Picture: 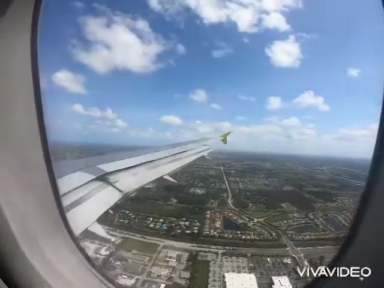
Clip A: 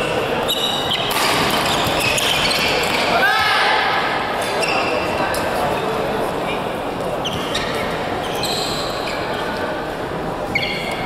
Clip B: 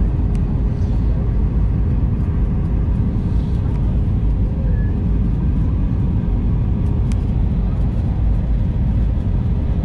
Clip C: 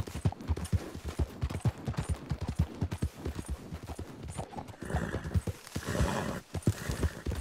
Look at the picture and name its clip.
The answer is B